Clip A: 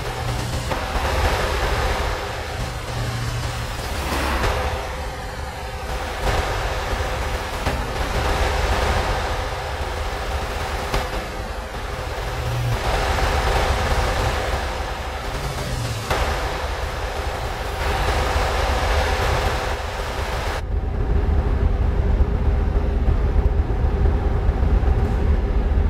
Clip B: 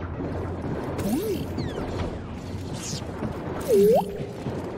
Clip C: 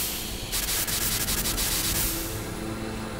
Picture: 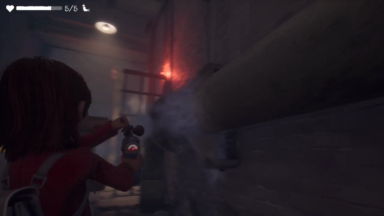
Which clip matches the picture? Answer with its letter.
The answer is C